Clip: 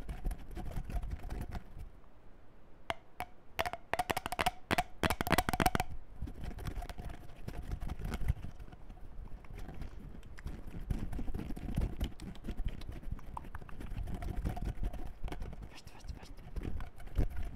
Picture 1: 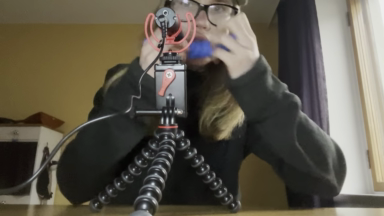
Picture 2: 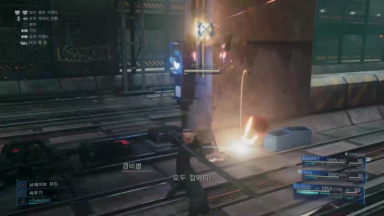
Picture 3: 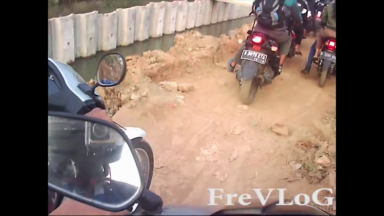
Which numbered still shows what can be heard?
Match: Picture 1